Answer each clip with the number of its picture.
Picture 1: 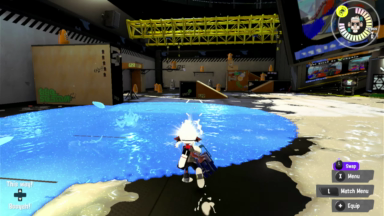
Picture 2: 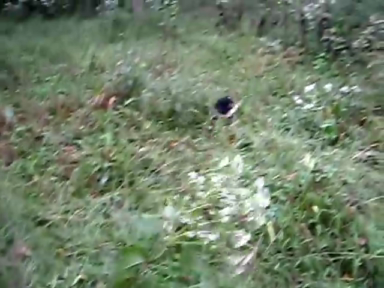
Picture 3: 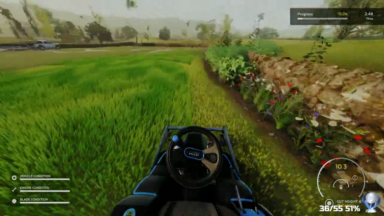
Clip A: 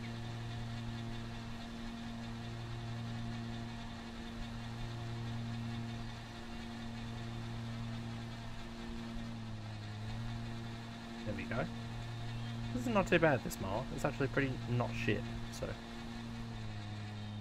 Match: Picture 3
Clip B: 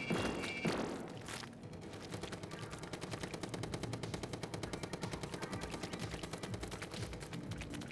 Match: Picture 1